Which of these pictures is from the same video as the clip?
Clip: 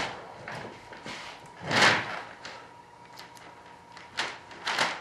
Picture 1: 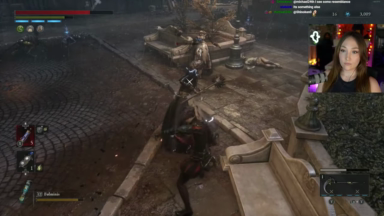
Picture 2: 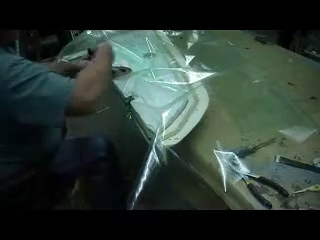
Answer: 2